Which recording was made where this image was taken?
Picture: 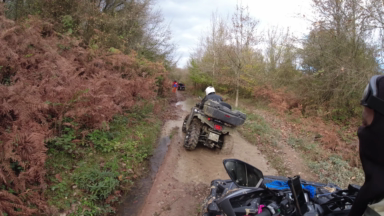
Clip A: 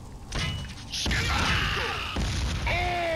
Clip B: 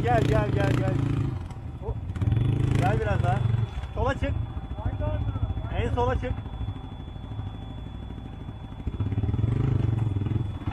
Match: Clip B